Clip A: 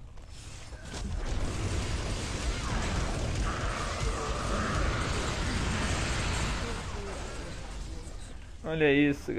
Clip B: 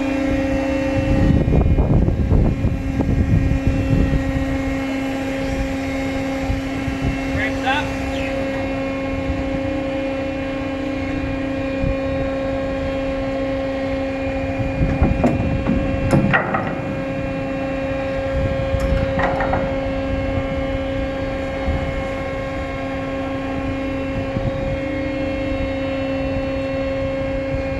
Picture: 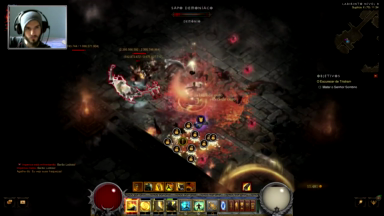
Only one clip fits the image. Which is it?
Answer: A